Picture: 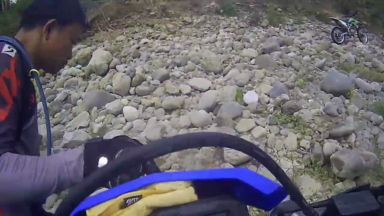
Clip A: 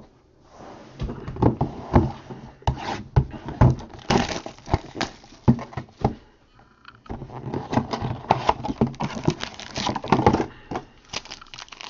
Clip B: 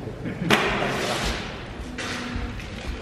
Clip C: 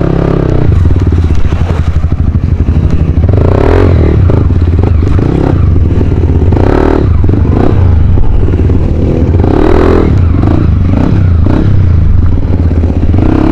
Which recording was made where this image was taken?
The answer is C